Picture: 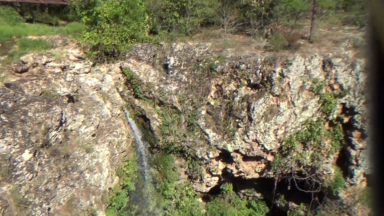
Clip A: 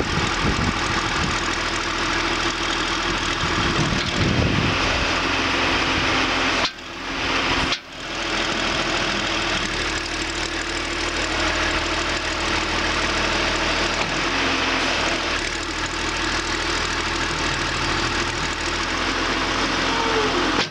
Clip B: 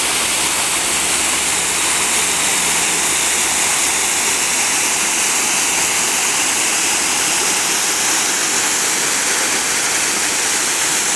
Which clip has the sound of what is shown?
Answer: B